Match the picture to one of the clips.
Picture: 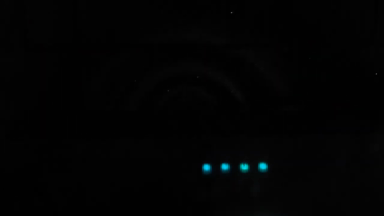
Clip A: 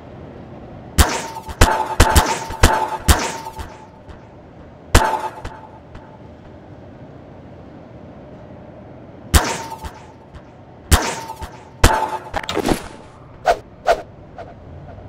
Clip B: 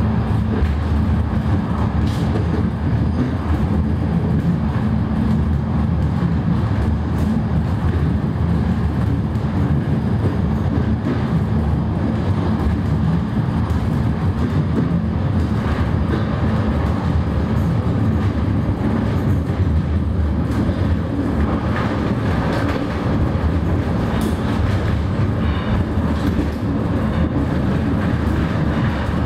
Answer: B